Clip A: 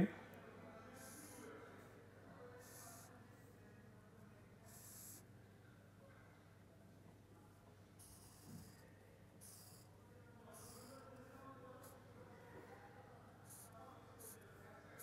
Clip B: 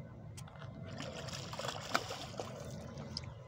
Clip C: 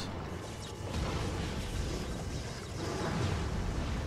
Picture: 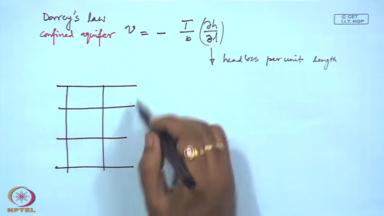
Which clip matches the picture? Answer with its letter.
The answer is A